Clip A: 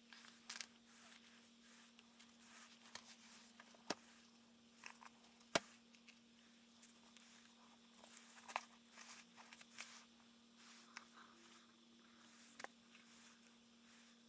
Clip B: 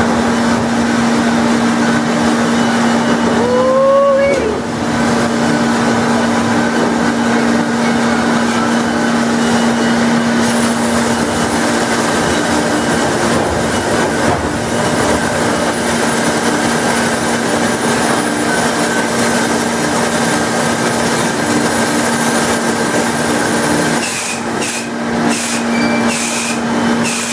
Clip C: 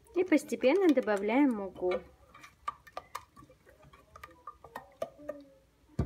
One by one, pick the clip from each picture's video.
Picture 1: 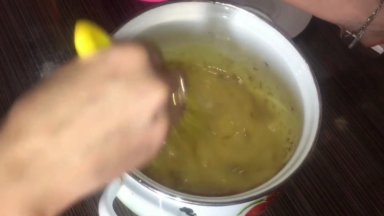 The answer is C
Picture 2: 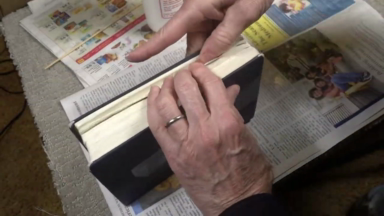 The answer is A